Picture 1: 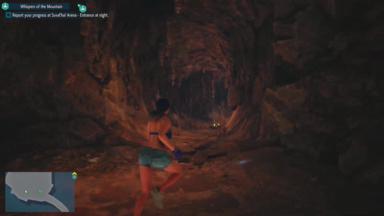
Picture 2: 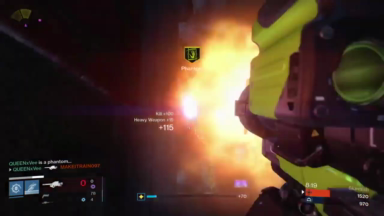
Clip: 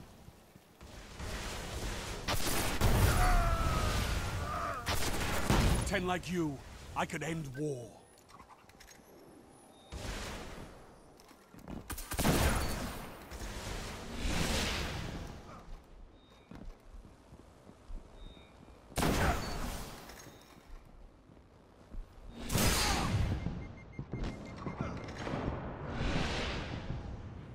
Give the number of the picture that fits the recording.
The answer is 2